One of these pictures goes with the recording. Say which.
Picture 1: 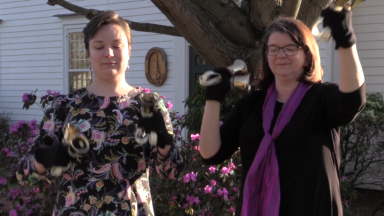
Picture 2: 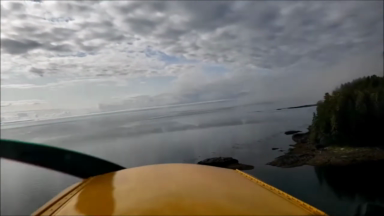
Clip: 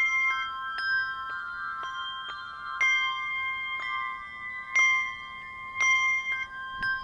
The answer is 1